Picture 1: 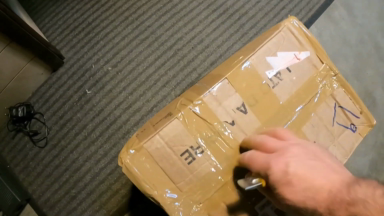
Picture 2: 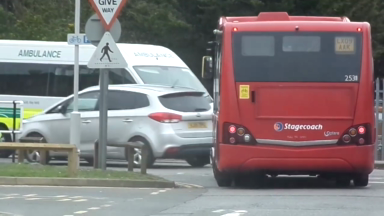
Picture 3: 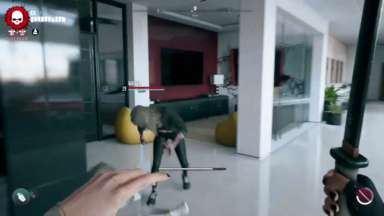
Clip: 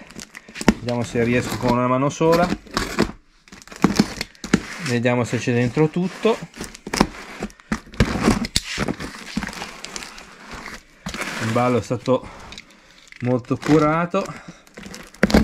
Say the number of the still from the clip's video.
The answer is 1